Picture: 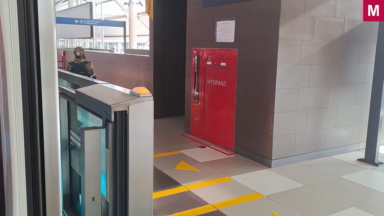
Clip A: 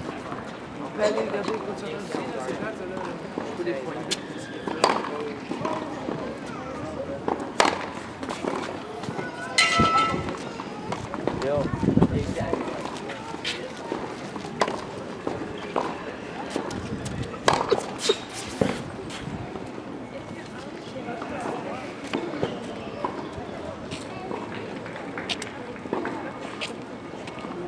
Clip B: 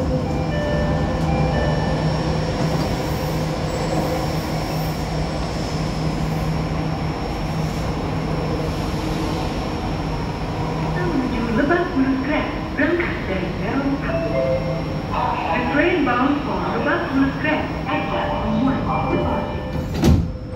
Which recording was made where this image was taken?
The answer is B